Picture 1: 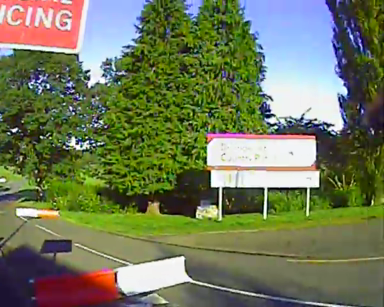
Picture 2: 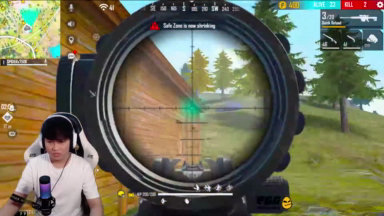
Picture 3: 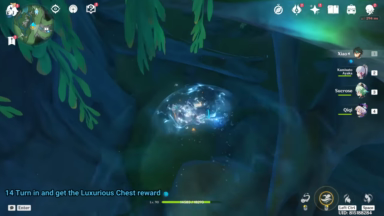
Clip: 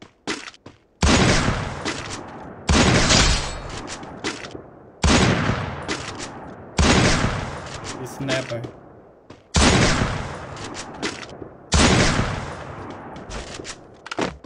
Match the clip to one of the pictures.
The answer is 2